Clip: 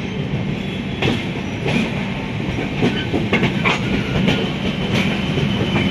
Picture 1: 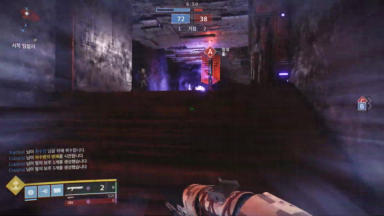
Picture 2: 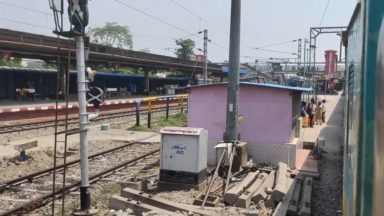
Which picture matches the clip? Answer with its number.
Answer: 2